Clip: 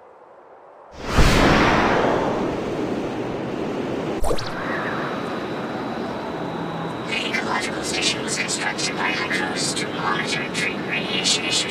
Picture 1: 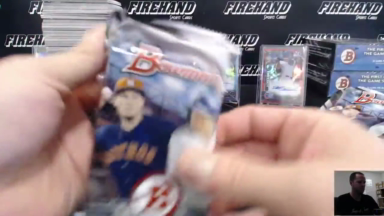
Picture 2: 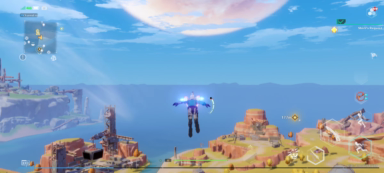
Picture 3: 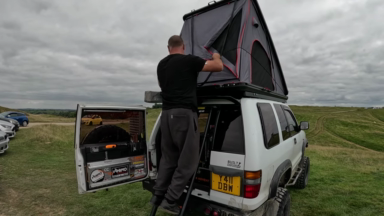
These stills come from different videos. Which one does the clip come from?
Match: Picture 2